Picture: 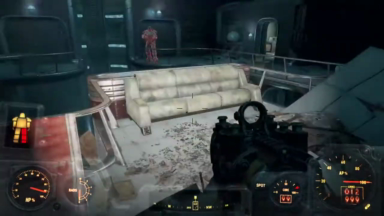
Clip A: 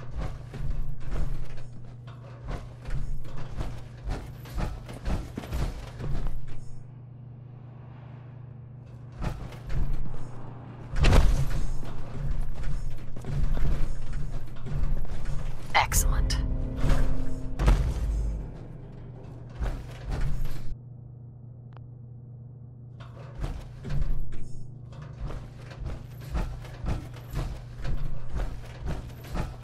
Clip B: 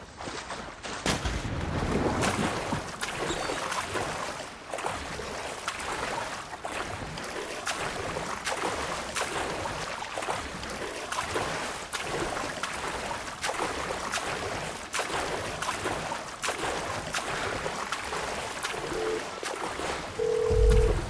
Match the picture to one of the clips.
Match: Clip A